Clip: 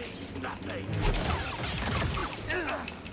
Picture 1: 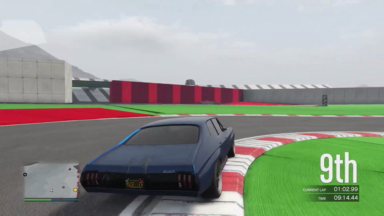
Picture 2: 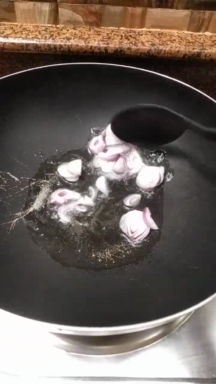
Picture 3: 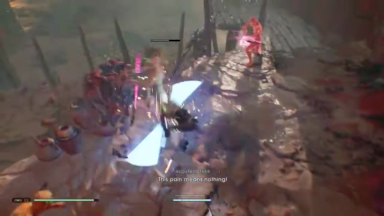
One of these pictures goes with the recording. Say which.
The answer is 3